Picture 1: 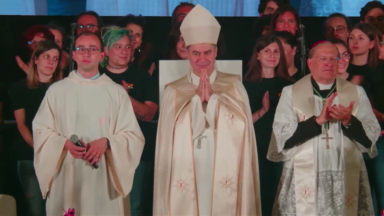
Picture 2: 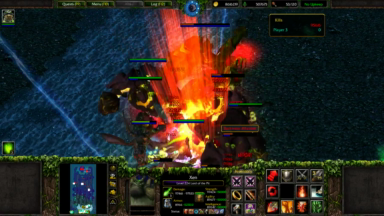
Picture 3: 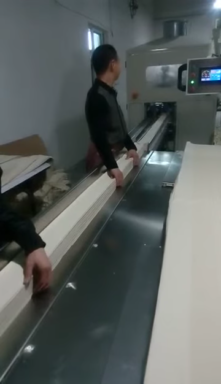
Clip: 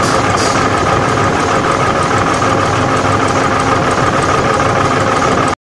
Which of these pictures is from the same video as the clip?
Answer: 3